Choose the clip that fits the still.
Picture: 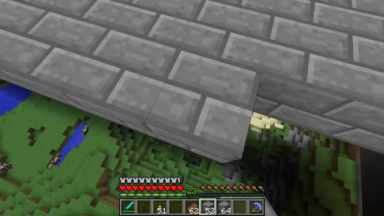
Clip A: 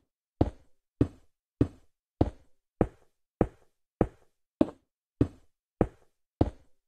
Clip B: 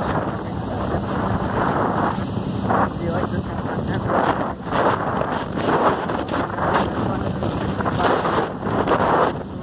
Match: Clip A